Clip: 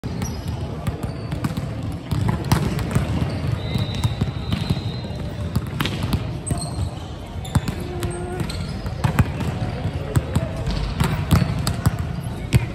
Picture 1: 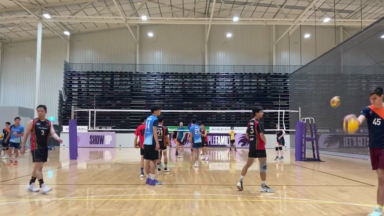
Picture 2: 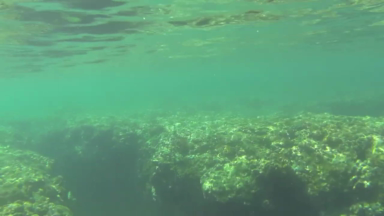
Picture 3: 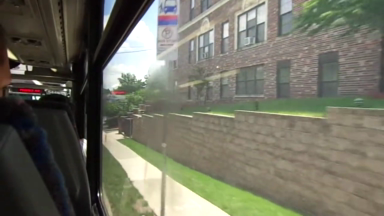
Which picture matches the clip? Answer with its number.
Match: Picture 1